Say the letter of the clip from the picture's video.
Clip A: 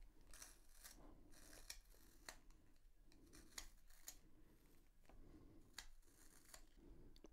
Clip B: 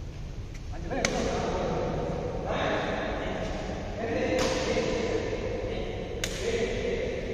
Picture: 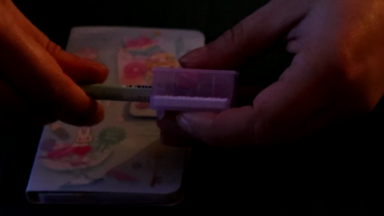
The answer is A